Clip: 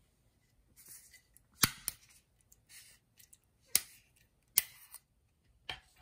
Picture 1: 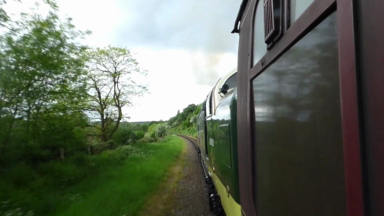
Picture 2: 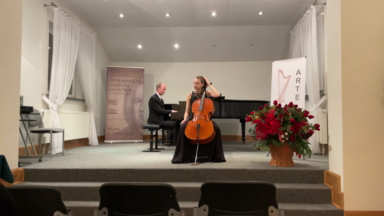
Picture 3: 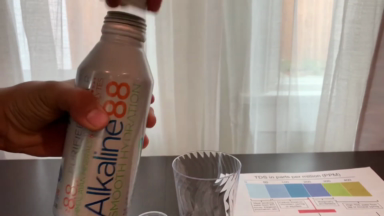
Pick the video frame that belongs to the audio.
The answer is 3